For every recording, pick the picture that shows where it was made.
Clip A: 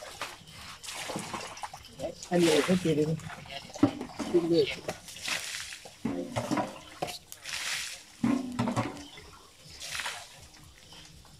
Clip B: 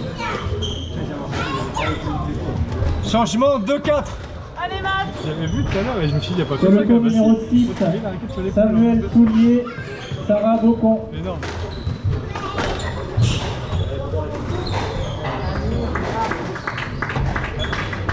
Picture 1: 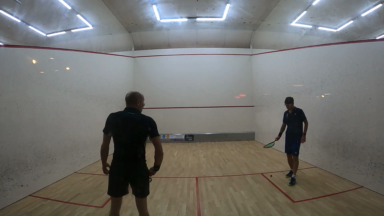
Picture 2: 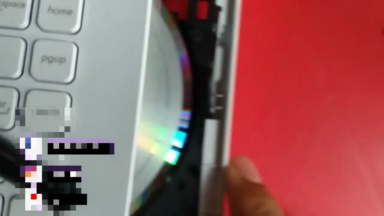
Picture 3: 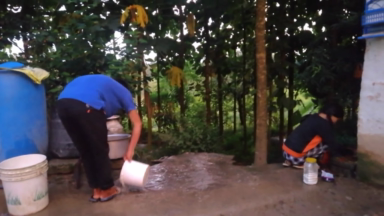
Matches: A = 3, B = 1